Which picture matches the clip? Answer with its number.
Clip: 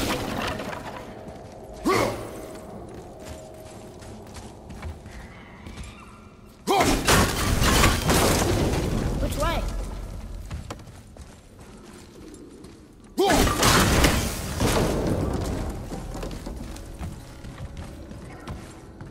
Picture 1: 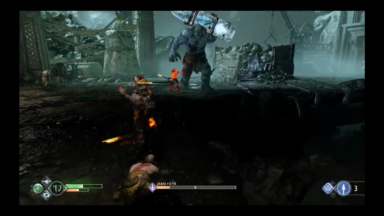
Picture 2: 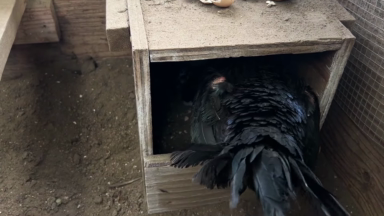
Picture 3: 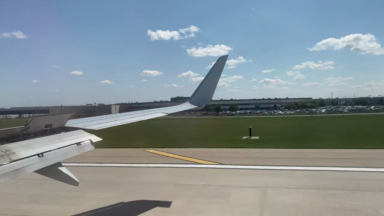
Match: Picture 1